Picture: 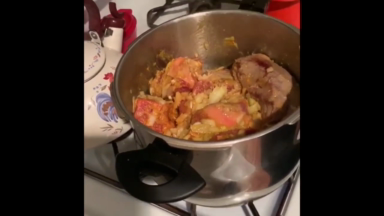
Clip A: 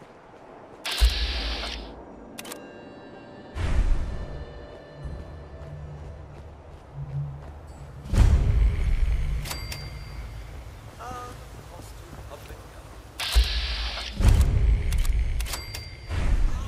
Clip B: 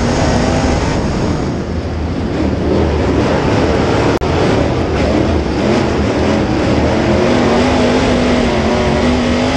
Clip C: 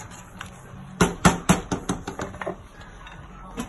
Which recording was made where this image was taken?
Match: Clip C